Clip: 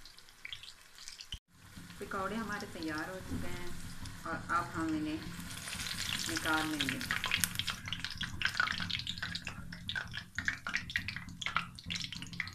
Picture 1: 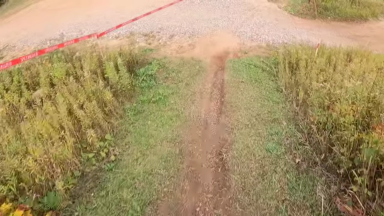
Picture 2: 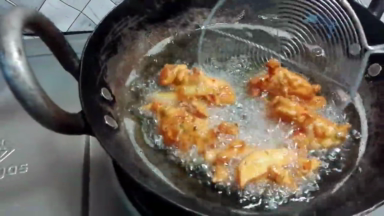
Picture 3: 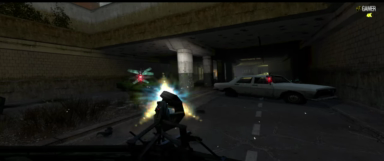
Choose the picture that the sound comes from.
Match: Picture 2